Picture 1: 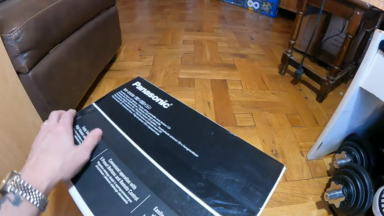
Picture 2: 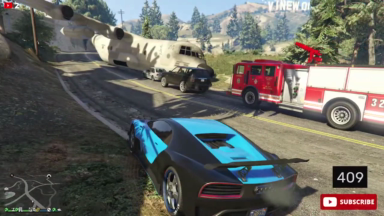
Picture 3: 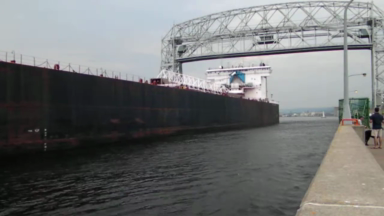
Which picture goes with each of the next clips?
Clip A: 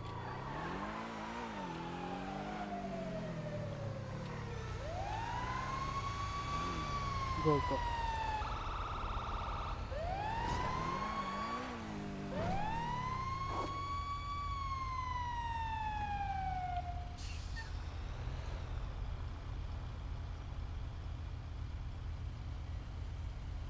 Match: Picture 2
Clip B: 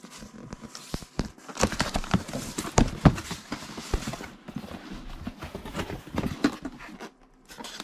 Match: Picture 1